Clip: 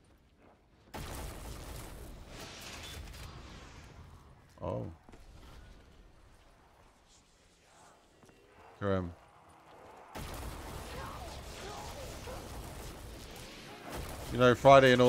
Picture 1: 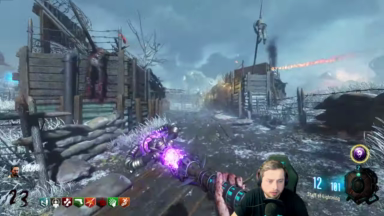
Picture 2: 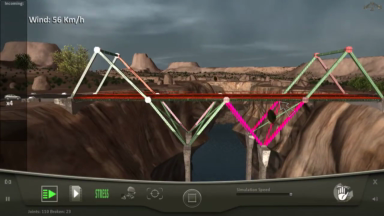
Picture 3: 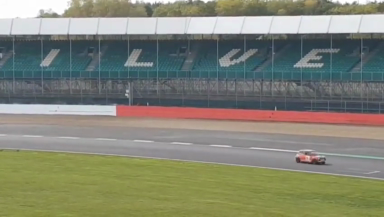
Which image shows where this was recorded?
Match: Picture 1